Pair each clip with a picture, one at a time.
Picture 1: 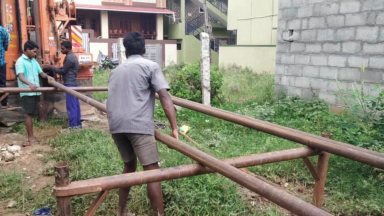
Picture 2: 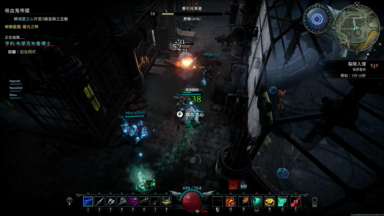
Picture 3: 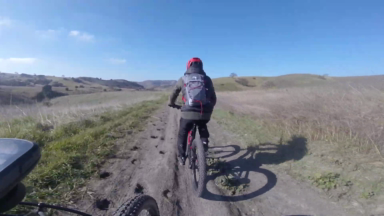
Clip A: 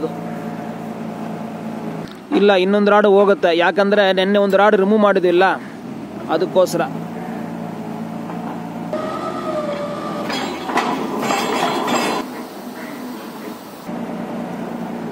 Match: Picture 1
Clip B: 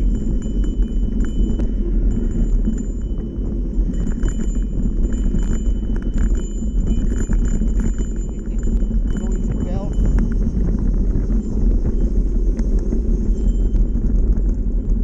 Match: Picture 3